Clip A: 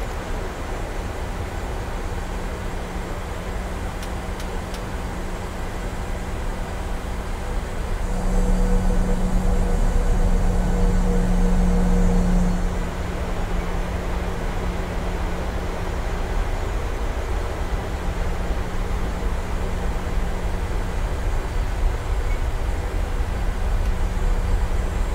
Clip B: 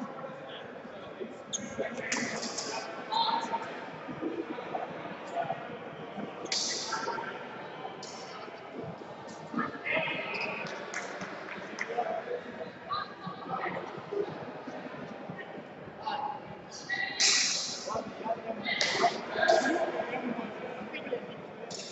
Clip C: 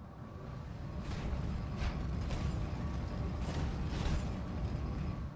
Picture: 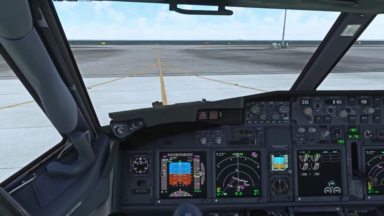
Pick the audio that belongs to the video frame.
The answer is A